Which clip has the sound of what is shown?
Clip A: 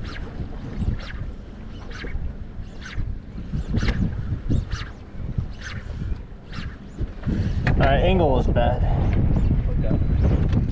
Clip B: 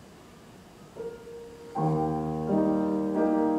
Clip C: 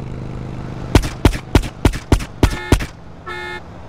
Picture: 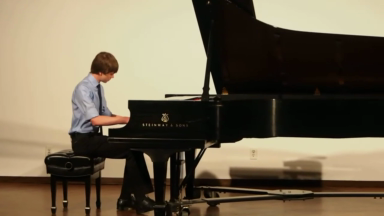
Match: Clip B